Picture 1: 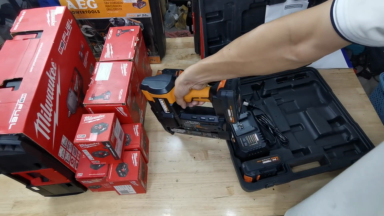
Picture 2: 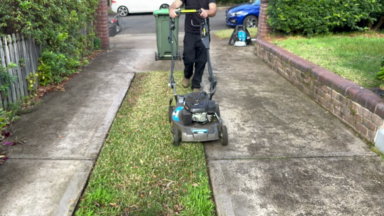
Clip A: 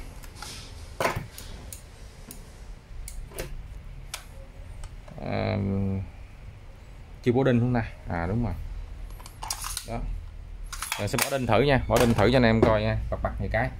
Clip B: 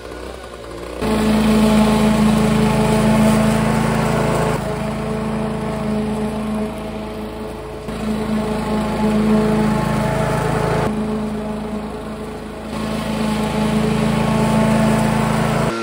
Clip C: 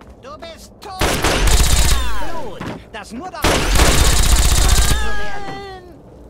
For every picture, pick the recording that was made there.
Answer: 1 A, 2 B